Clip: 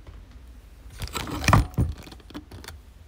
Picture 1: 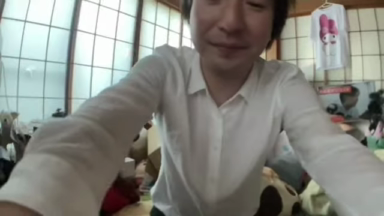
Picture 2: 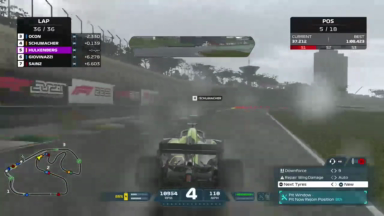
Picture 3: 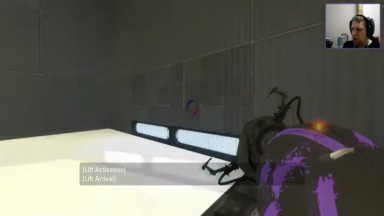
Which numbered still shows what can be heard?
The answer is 1